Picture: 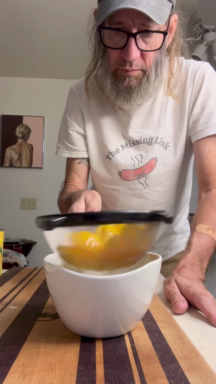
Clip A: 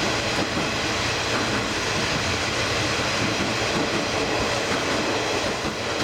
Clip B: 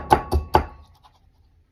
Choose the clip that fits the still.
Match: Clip B